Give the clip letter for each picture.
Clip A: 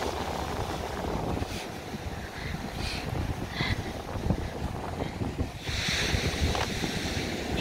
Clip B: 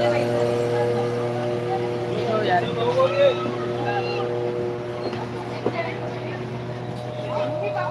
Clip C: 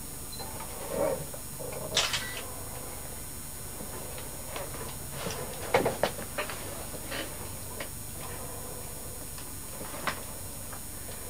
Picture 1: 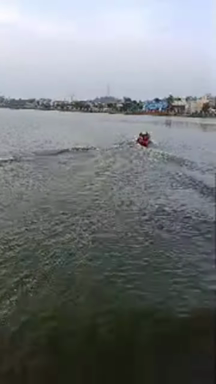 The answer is B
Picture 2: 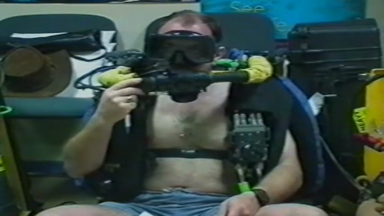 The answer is C